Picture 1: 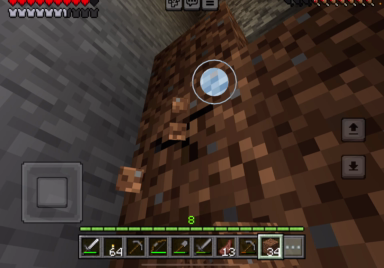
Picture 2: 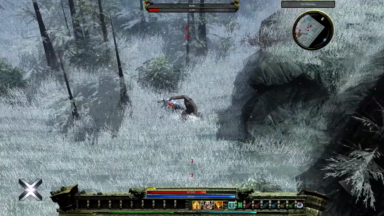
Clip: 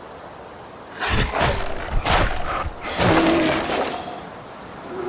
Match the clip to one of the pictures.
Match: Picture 2